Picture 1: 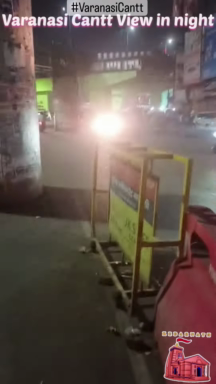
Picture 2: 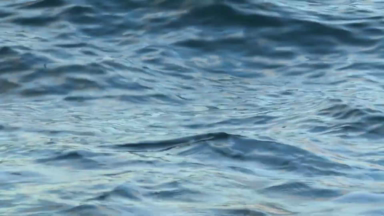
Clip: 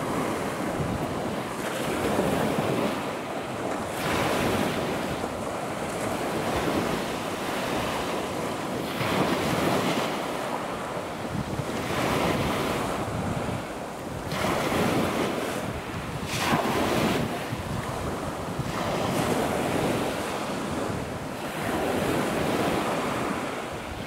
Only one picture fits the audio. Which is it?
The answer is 2